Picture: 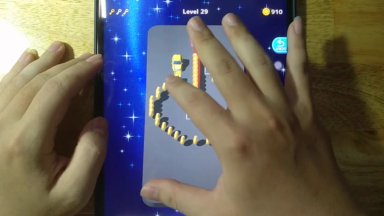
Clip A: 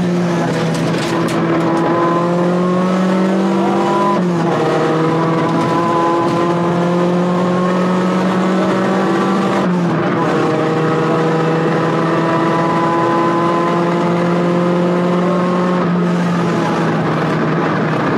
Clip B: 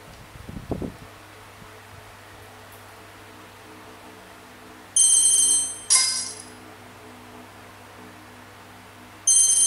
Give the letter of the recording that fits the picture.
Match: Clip B